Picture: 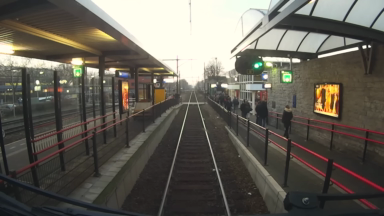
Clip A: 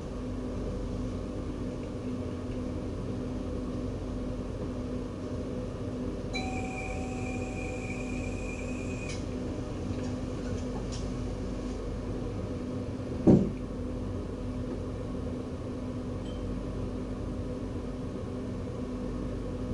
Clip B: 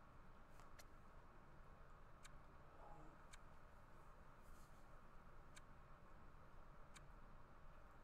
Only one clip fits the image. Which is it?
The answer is A